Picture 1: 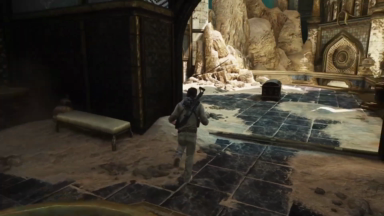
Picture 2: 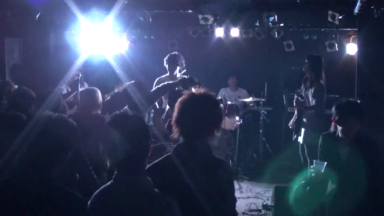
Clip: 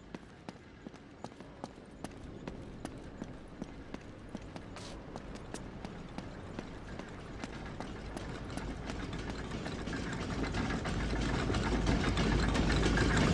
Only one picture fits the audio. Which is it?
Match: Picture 1